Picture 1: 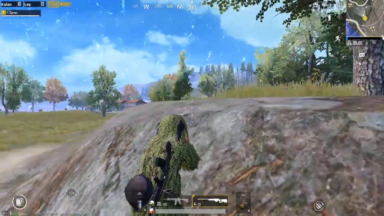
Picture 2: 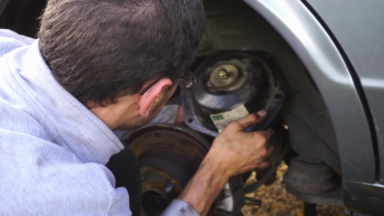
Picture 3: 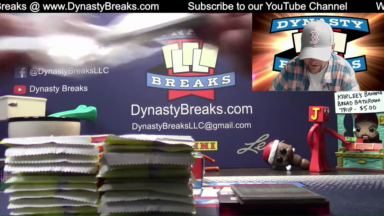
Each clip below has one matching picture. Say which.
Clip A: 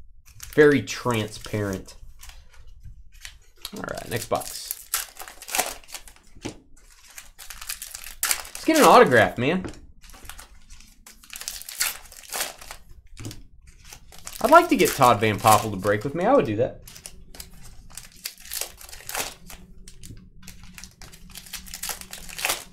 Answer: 3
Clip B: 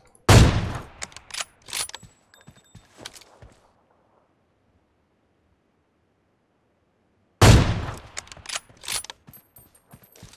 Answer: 1